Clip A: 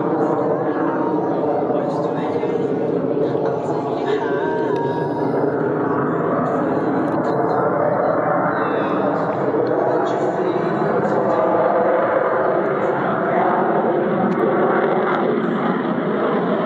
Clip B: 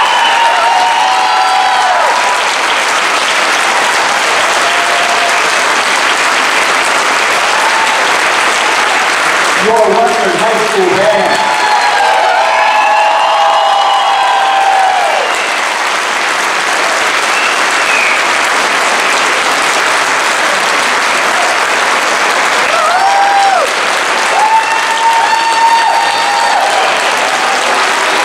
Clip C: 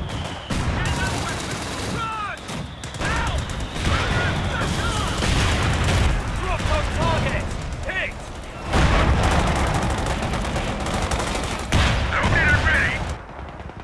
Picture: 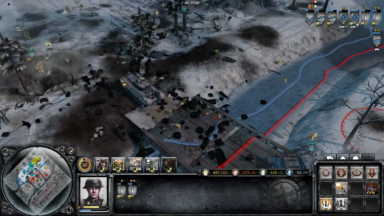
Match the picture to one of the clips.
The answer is C